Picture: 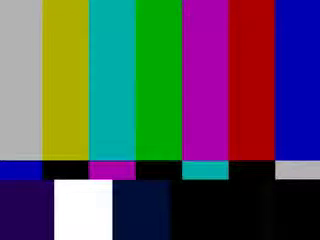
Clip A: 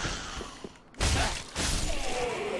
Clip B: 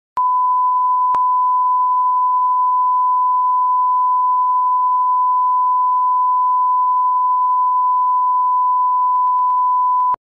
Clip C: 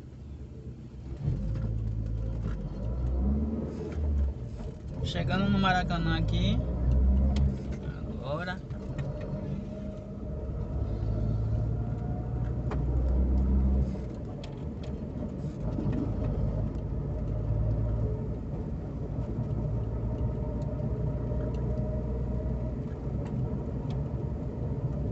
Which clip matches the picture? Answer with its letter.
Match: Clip B